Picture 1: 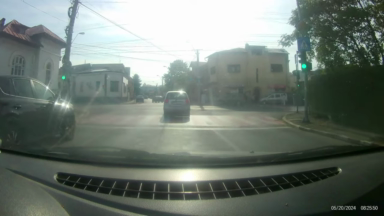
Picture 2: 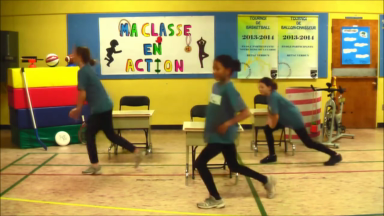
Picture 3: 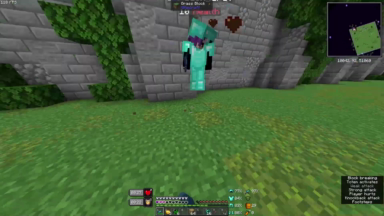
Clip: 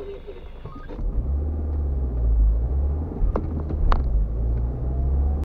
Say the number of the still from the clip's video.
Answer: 1